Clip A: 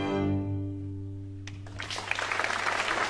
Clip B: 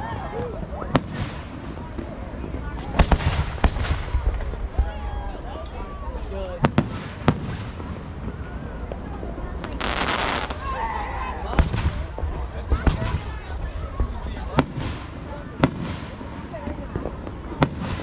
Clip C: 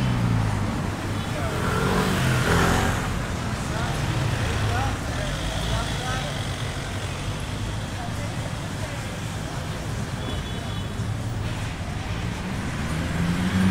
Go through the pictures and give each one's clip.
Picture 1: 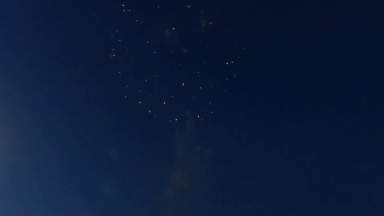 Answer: B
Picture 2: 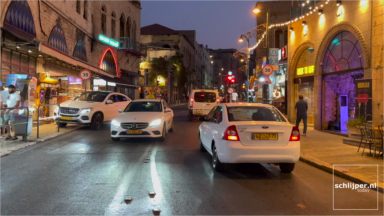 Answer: C